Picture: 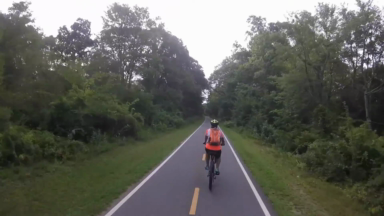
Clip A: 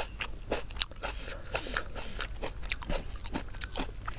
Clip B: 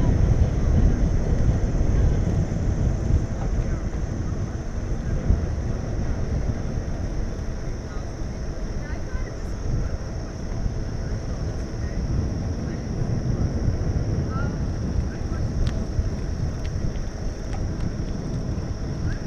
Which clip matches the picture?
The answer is B